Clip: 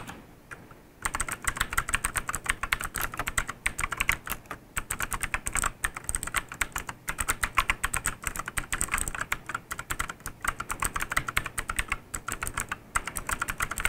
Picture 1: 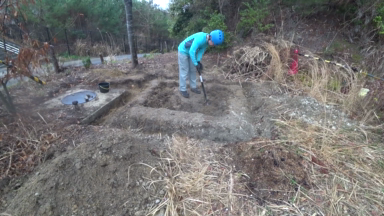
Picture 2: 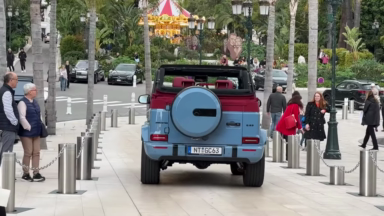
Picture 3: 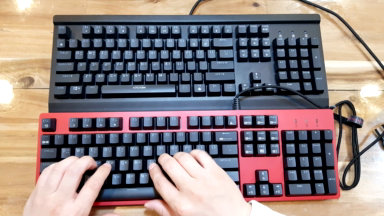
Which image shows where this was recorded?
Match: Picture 3